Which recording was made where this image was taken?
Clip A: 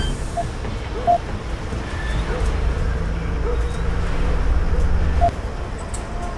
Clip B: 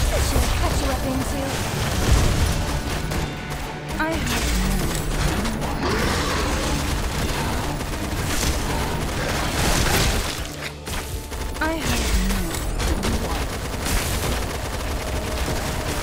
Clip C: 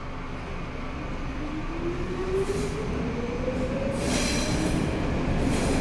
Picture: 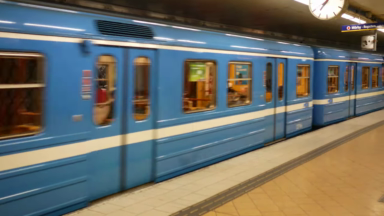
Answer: C